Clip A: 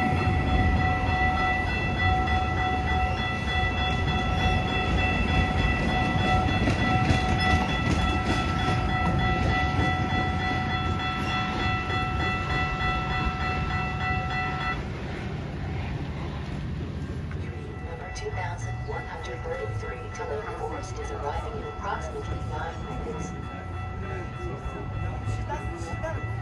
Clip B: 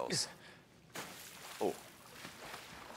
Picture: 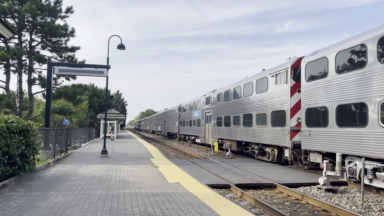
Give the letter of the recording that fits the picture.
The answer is A